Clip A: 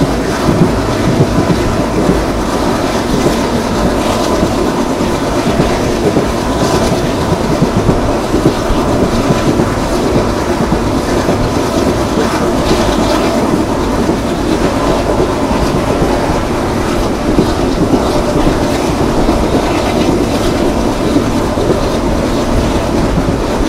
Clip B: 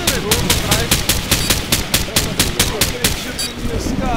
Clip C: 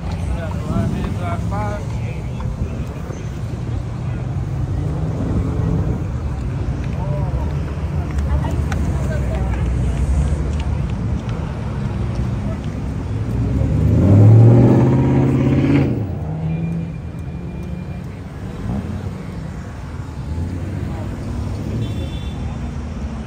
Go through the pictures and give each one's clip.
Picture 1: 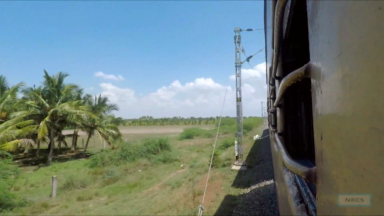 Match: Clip A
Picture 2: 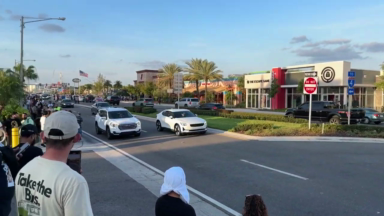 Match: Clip C